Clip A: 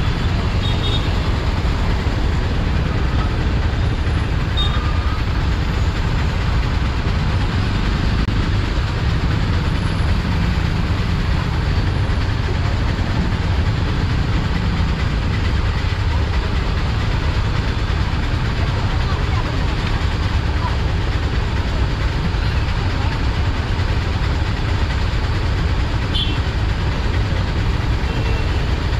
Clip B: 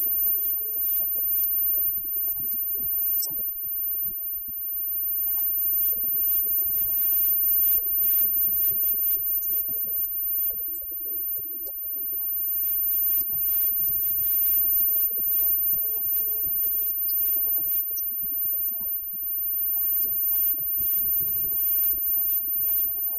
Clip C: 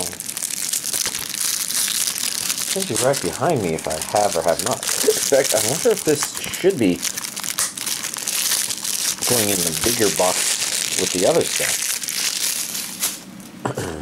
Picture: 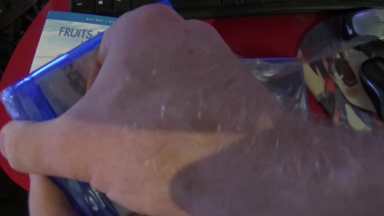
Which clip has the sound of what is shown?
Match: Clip C